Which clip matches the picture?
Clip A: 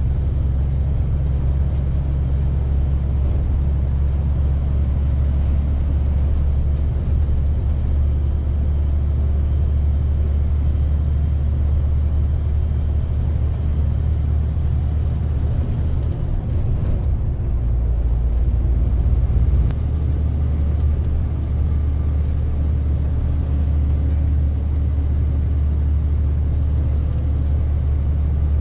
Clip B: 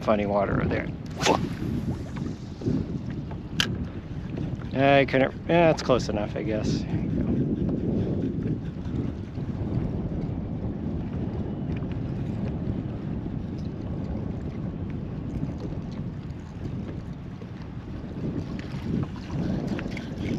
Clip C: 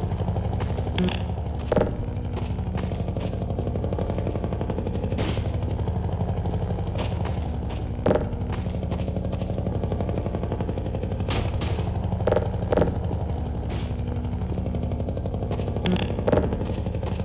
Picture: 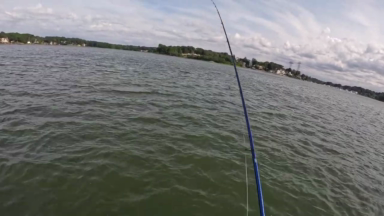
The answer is B